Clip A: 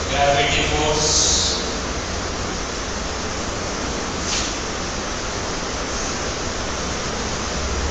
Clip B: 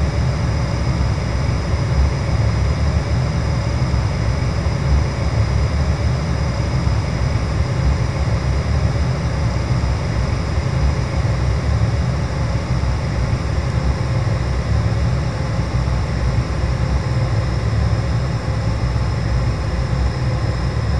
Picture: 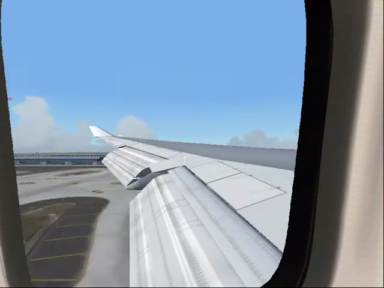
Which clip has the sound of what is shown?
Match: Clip B